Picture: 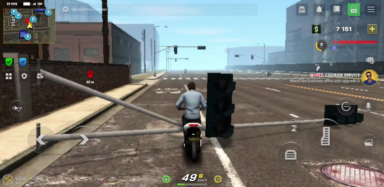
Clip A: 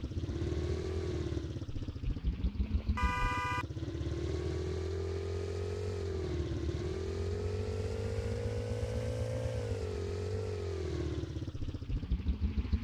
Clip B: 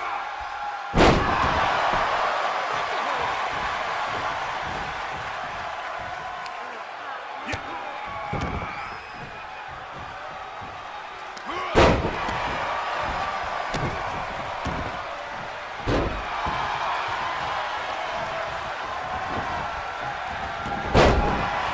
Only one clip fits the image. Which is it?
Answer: A